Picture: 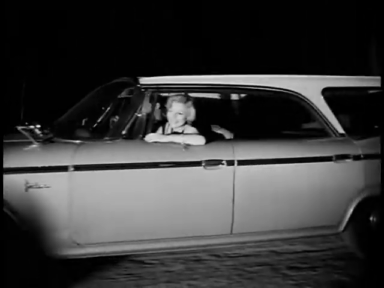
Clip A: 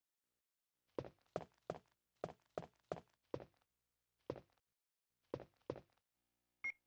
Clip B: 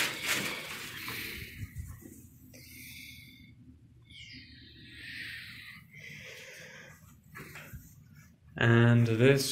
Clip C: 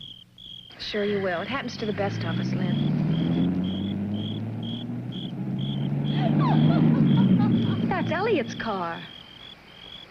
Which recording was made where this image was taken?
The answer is C